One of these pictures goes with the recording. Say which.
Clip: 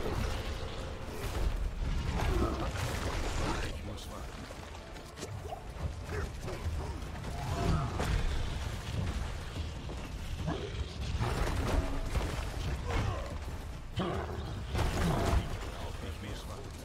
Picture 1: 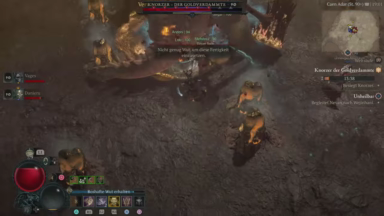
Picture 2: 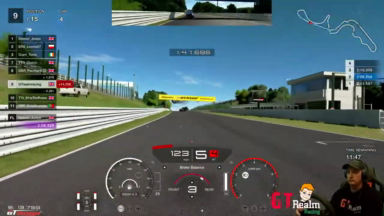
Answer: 1